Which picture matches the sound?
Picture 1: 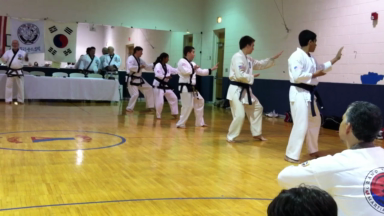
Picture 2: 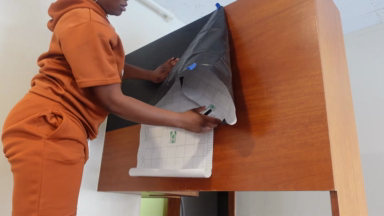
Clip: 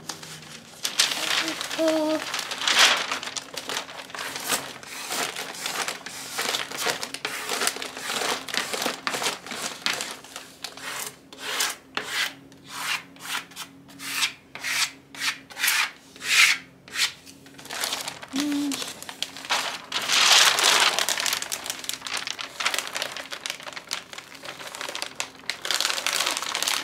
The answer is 2